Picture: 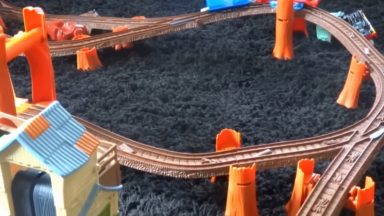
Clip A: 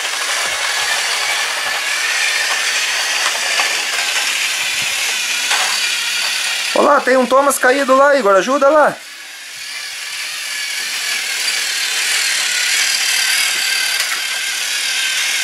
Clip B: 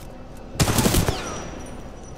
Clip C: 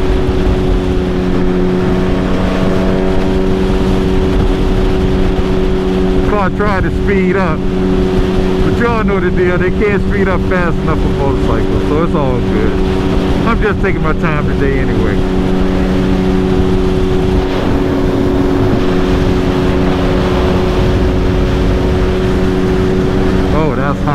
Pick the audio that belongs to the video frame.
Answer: A